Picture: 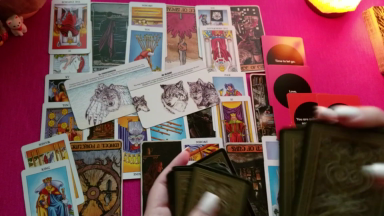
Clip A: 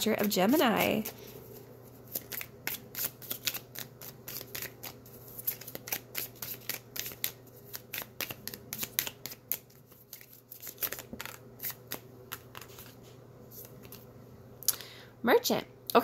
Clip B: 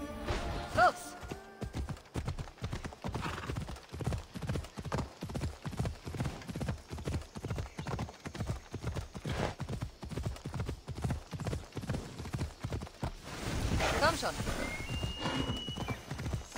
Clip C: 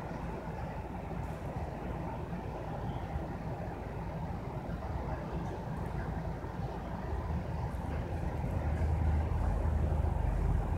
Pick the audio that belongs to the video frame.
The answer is A